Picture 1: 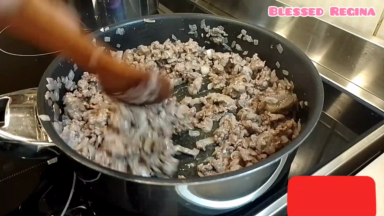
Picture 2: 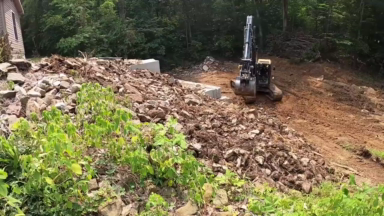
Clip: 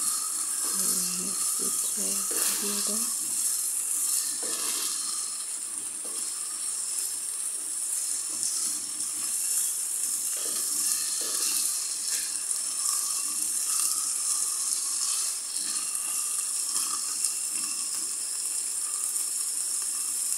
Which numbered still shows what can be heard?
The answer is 1